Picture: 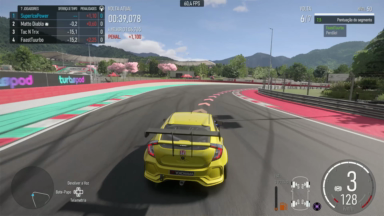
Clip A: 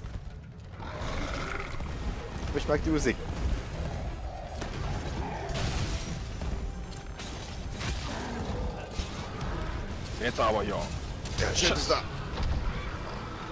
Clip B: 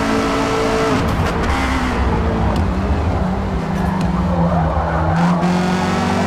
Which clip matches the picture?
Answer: B